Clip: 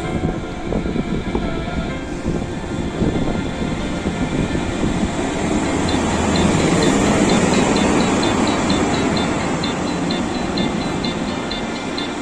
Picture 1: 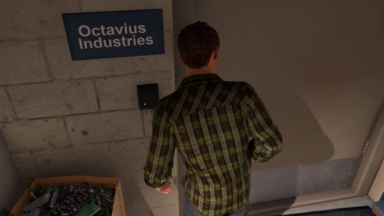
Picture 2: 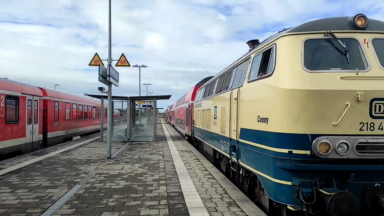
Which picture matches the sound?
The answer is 2